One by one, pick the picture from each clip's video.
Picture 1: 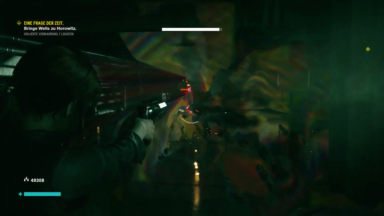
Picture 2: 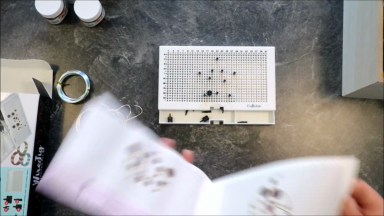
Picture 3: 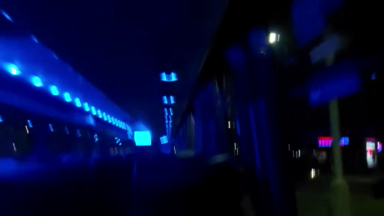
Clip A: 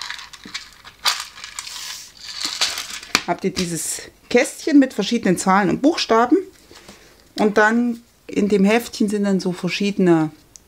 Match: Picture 2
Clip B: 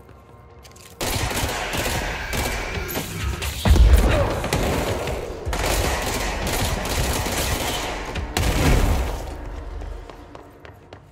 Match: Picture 1